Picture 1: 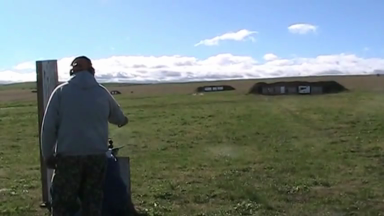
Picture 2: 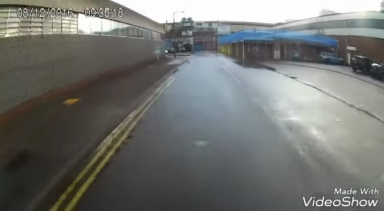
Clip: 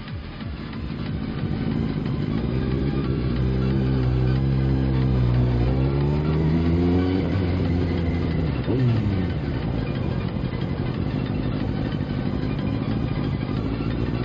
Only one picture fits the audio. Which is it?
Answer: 2